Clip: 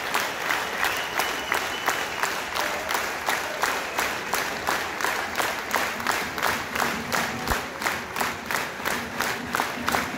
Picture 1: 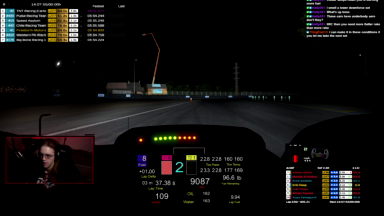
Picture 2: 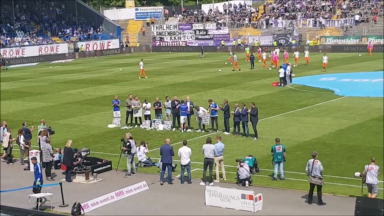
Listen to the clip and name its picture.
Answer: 2